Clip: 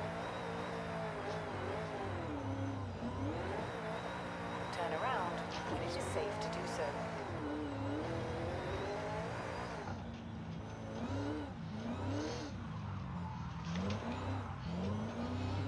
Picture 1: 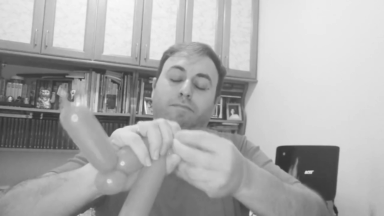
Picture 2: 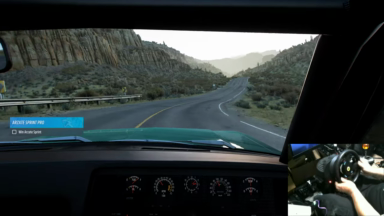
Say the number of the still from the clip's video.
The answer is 2